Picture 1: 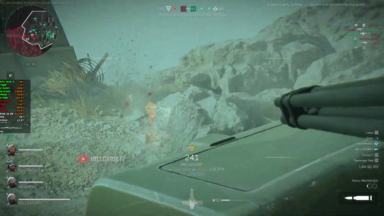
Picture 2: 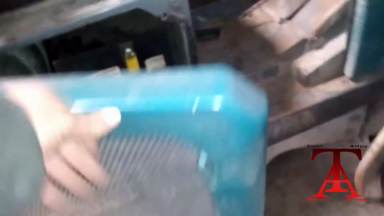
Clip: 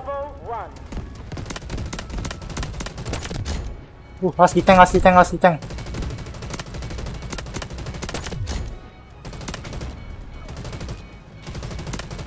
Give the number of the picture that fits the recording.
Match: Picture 1